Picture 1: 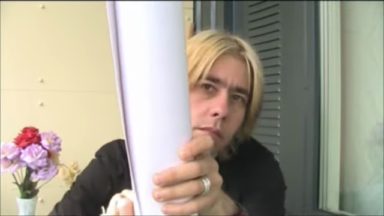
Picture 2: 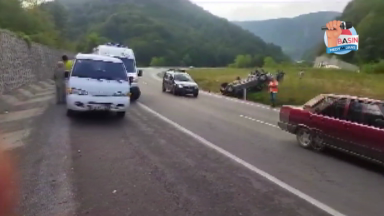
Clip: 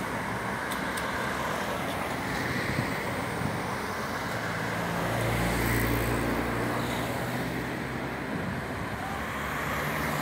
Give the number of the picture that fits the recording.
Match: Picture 2